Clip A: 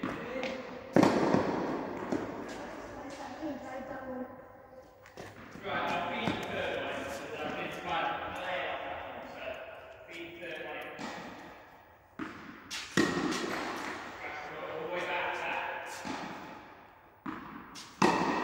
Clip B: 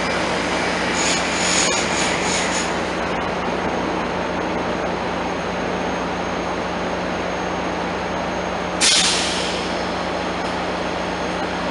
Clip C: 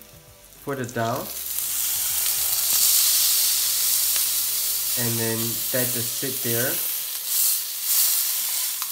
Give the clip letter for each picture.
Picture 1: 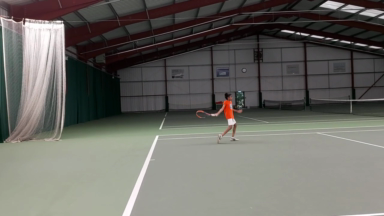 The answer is A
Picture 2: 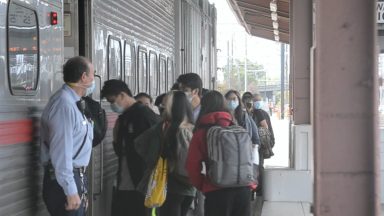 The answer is B